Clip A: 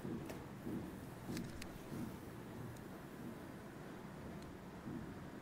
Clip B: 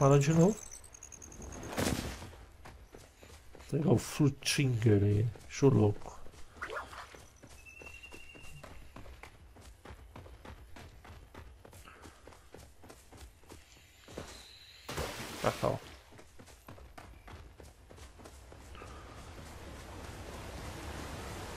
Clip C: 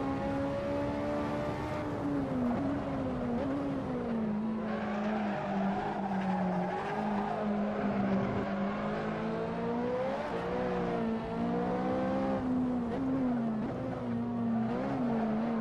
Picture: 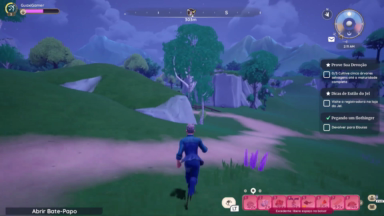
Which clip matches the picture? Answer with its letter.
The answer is B